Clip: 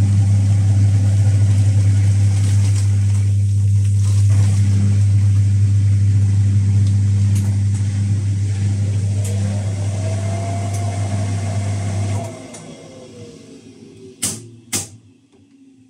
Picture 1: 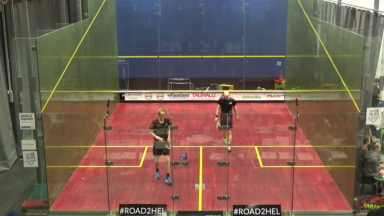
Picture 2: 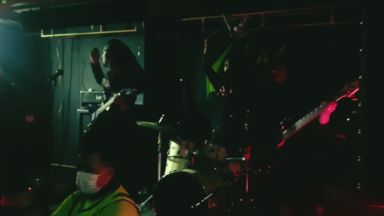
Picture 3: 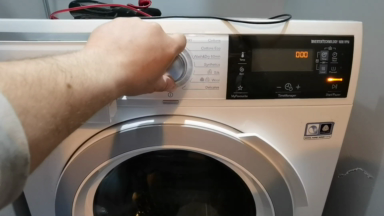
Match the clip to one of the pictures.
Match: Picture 3